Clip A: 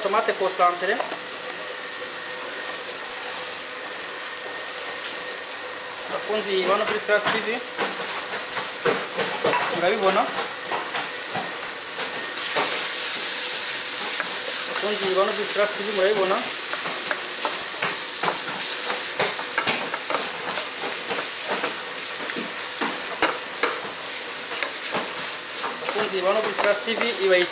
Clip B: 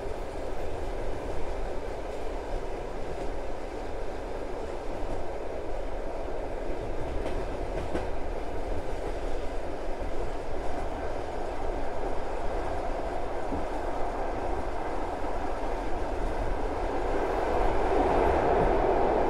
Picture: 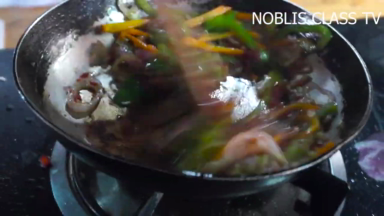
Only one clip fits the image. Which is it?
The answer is A